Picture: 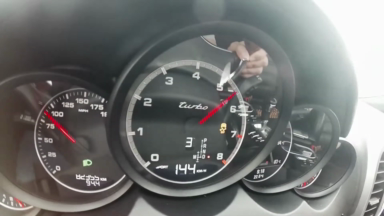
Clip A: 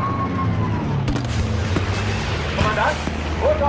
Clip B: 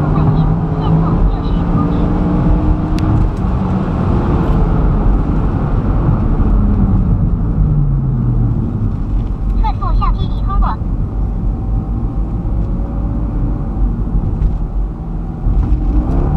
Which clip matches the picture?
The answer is B